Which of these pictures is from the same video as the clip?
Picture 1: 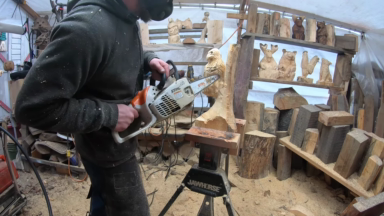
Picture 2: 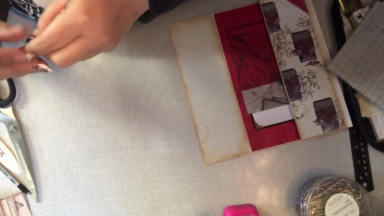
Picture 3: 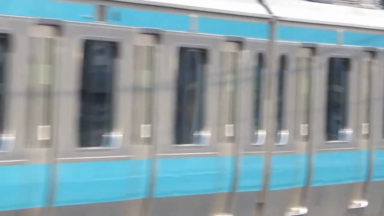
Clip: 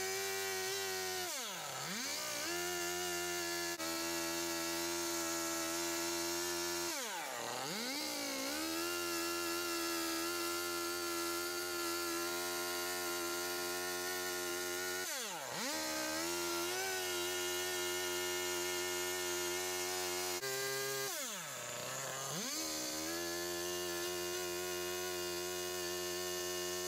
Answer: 1